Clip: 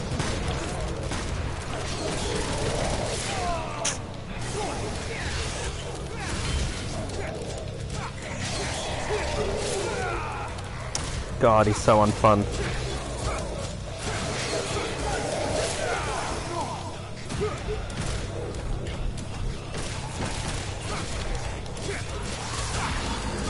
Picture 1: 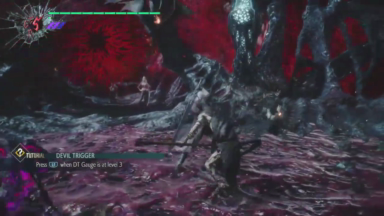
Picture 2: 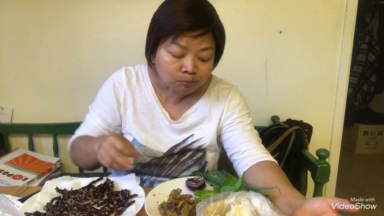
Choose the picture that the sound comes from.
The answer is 1